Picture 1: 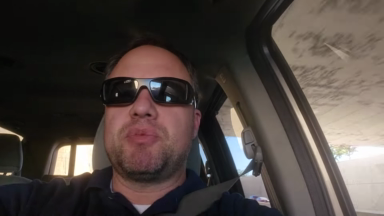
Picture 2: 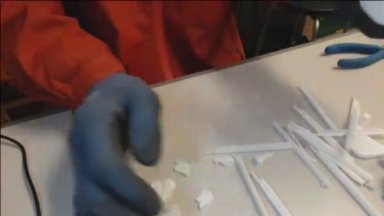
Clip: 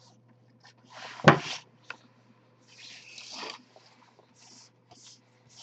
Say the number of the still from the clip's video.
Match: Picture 2